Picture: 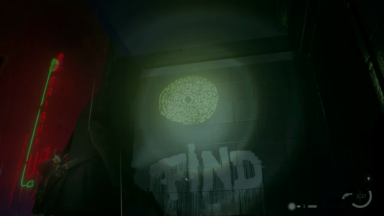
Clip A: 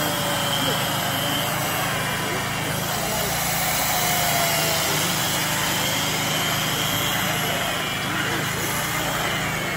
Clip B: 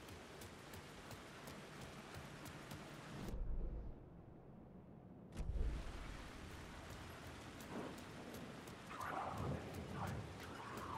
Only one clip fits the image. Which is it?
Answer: B